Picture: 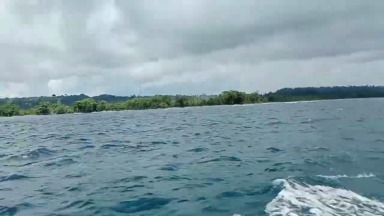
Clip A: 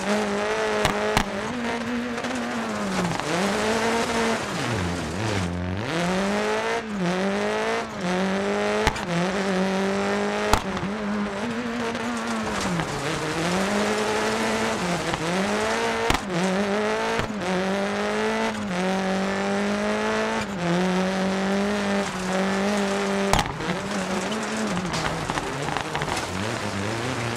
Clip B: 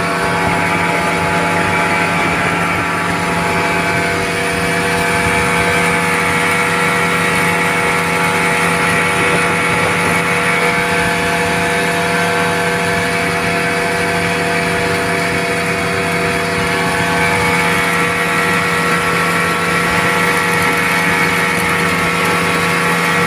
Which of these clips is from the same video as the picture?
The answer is B